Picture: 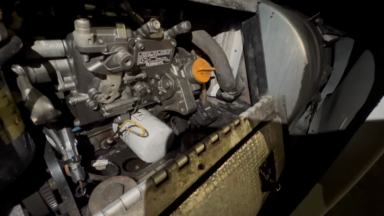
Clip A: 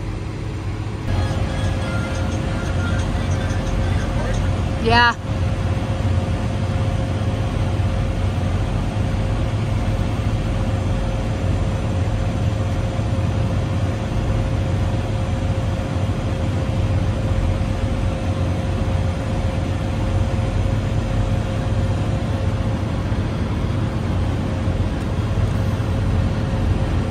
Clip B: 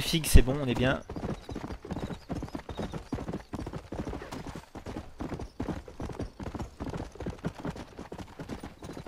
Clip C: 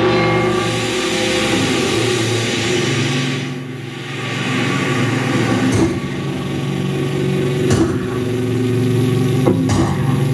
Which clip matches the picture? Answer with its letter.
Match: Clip A